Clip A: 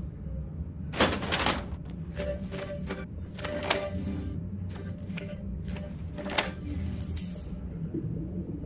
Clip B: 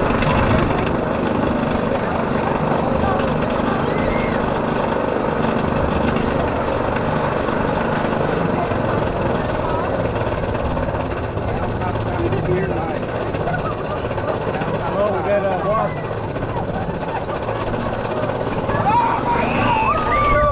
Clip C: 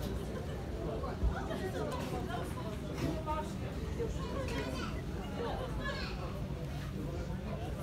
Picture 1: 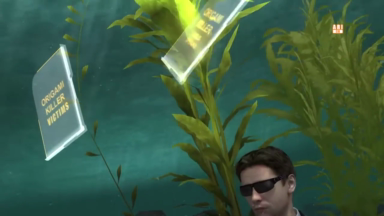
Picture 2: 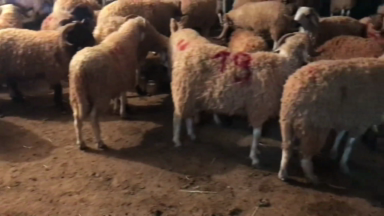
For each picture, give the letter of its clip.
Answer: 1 A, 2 C